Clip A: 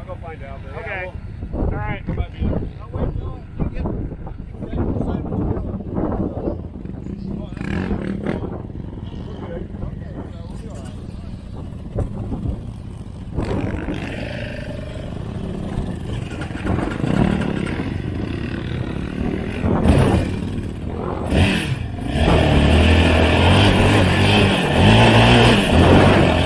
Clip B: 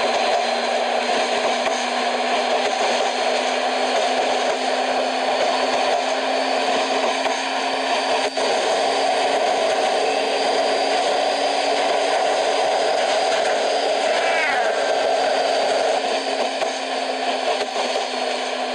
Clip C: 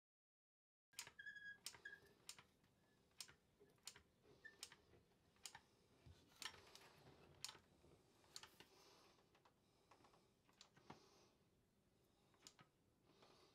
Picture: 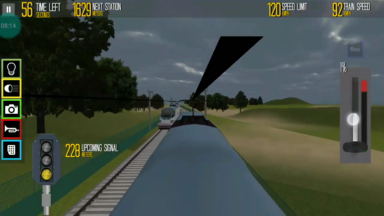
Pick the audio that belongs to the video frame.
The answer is B